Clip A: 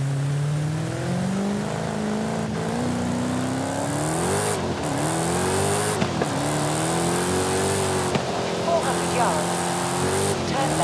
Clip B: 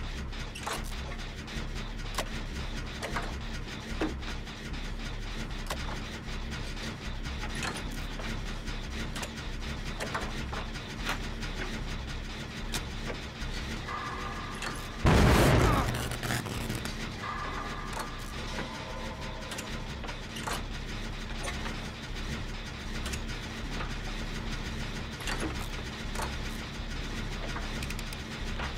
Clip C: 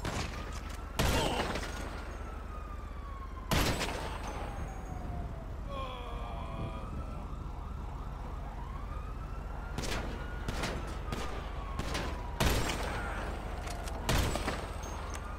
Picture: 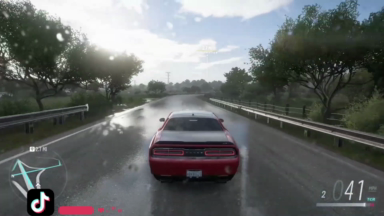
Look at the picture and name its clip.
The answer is A